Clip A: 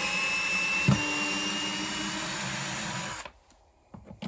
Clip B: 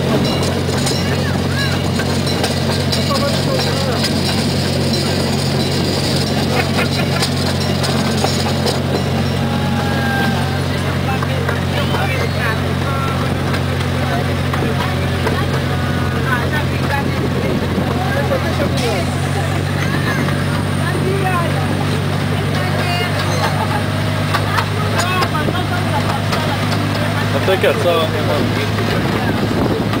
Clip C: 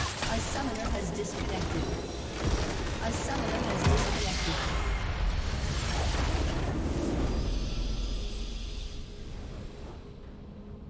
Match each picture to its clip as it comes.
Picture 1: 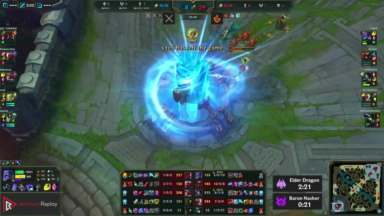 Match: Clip C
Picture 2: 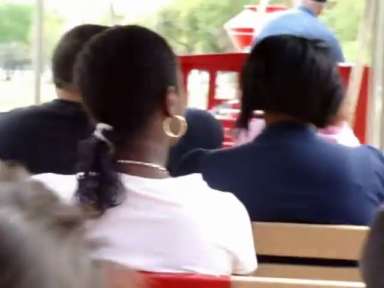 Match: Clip B